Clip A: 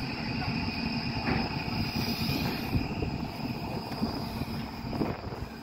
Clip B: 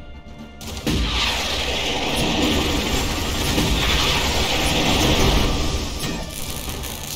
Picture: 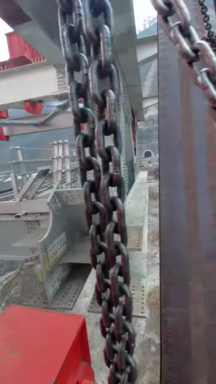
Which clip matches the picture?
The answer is A